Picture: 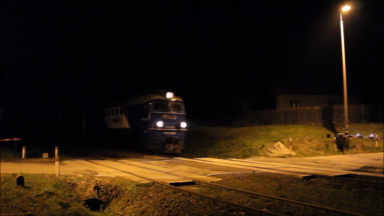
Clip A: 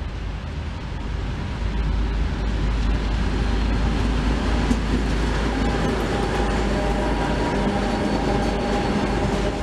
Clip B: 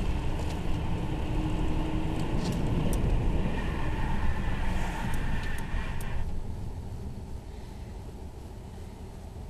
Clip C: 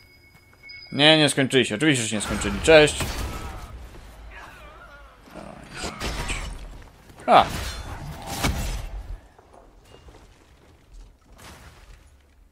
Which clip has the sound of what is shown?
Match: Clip A